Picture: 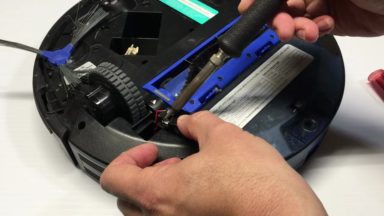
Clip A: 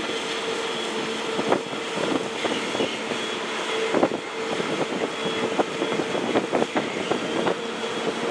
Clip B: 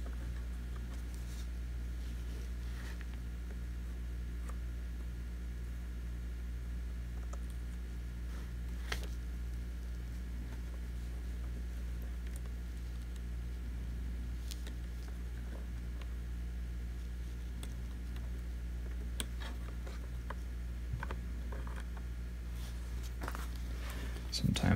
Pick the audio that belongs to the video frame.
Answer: B